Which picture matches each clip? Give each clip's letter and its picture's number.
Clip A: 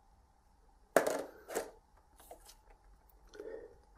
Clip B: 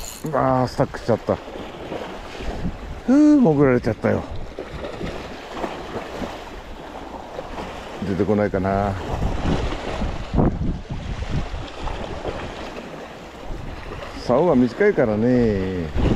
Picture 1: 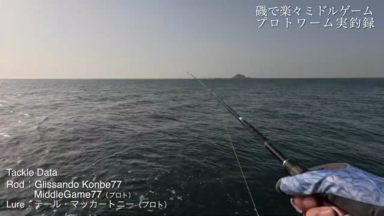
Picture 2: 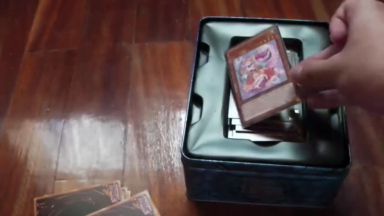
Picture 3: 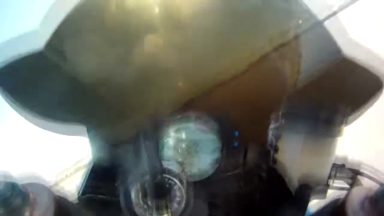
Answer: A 2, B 1